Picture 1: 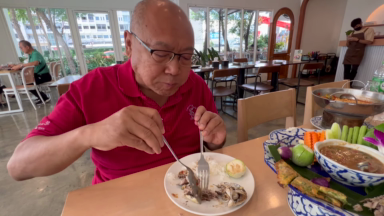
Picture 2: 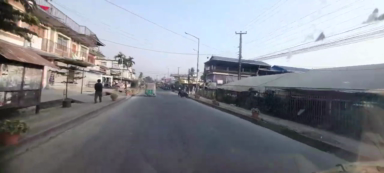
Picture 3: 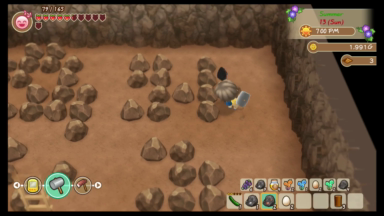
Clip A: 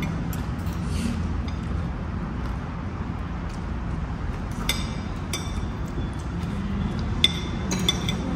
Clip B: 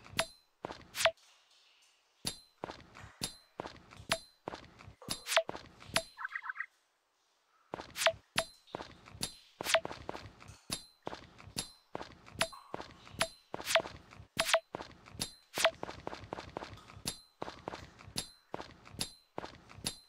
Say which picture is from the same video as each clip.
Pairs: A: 1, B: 3